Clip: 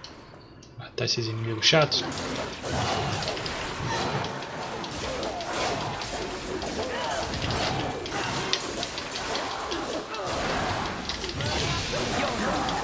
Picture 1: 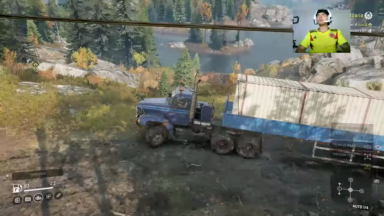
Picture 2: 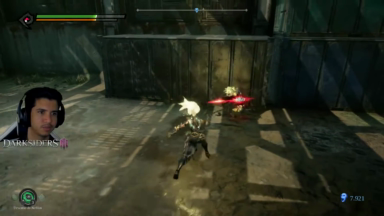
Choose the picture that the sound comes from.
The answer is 2